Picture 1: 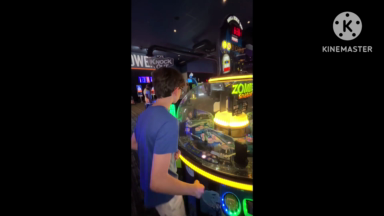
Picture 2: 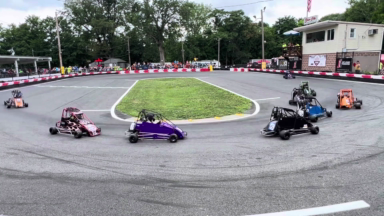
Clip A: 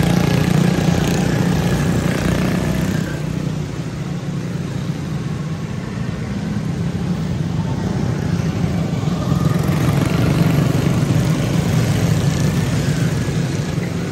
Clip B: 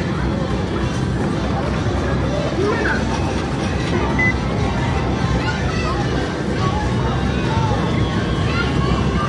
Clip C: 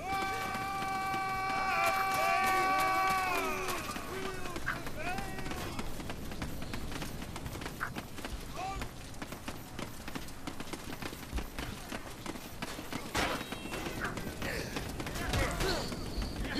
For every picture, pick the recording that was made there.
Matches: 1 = B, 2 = A